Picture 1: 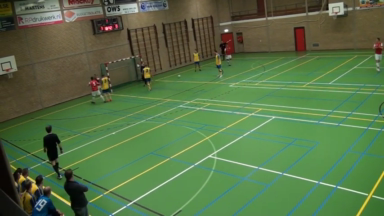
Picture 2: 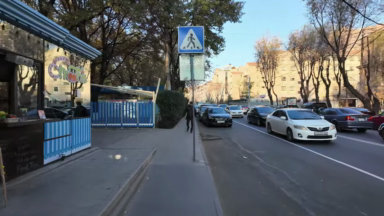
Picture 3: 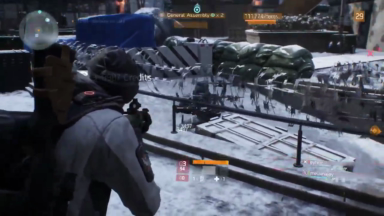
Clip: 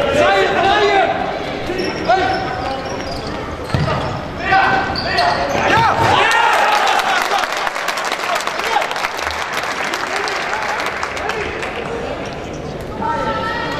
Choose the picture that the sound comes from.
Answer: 1